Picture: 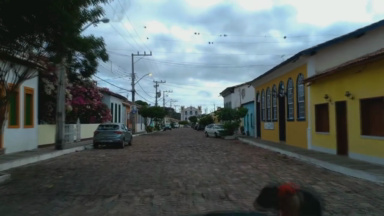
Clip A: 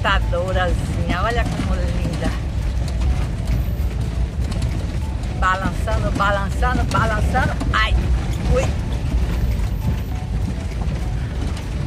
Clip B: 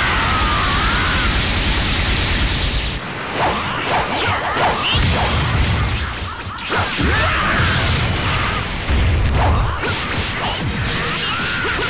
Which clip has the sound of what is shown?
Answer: A